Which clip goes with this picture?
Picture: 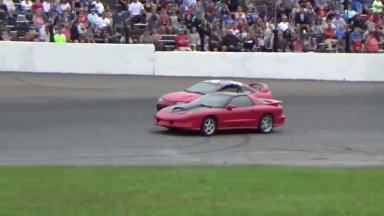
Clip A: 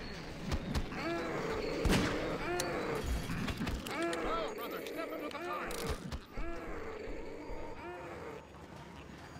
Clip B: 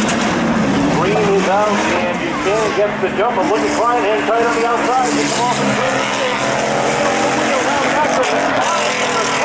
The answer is B